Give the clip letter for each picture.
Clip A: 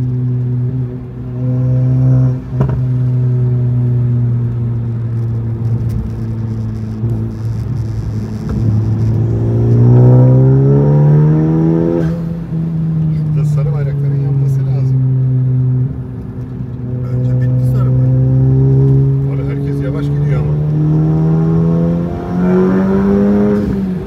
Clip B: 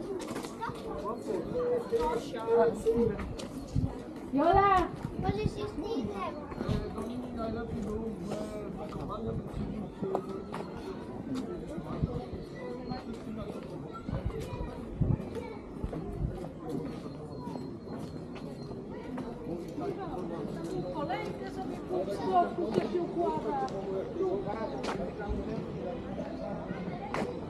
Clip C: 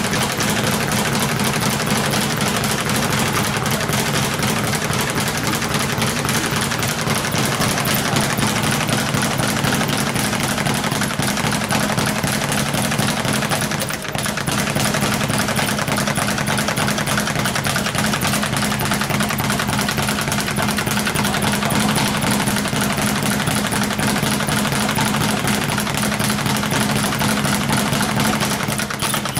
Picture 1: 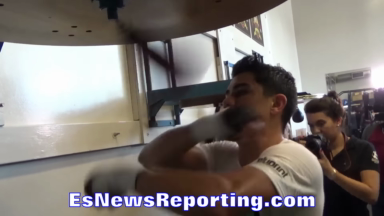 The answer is C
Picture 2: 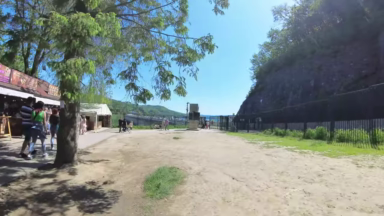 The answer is B